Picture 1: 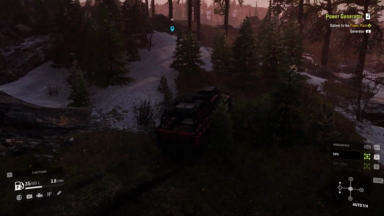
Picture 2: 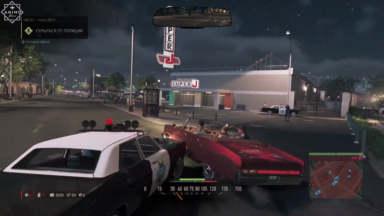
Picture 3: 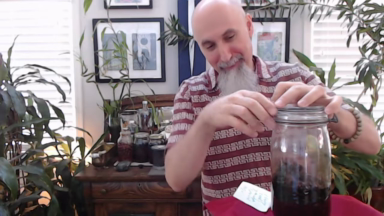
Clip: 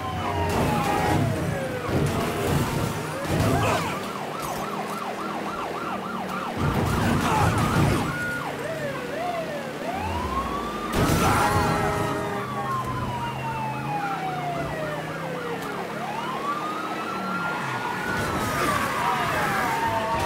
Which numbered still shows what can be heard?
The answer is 2